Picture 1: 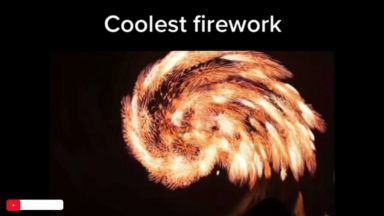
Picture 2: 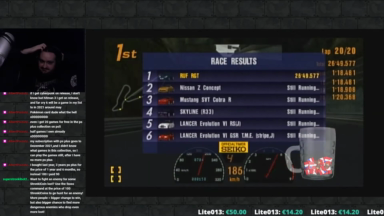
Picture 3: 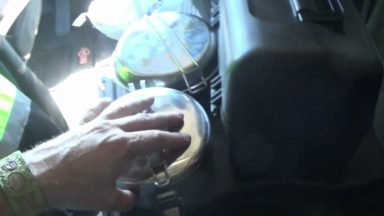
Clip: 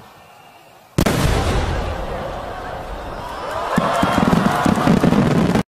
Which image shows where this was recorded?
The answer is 1